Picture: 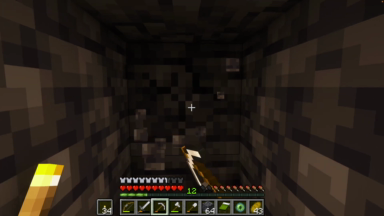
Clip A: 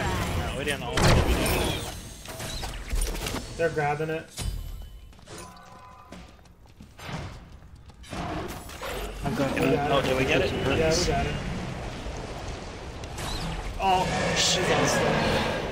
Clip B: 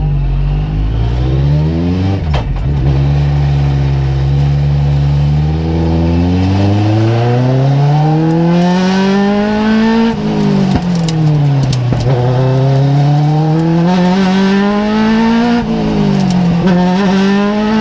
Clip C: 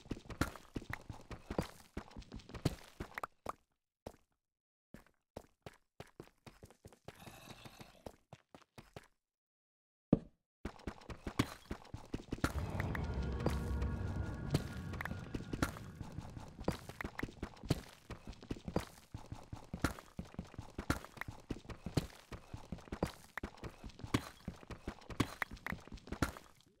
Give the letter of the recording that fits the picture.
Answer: C